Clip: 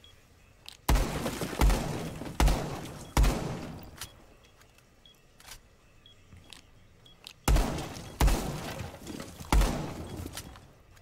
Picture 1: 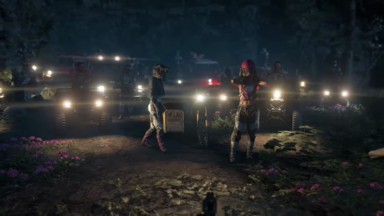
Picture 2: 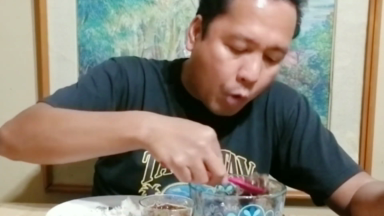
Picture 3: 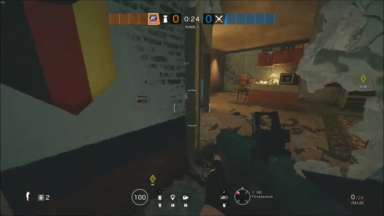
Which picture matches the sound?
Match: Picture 3